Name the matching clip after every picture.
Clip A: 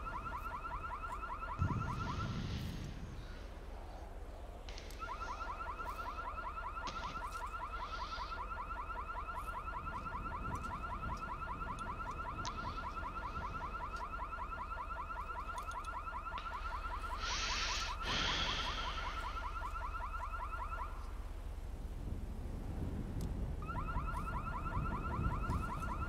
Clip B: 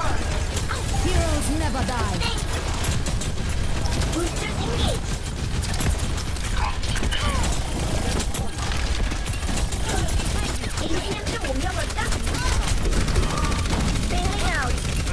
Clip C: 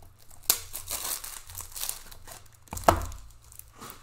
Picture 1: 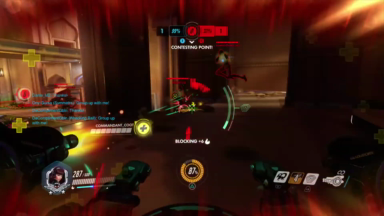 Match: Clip B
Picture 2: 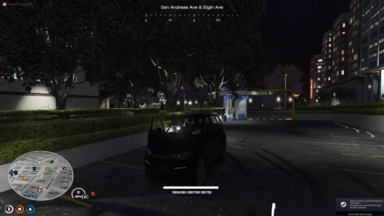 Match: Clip A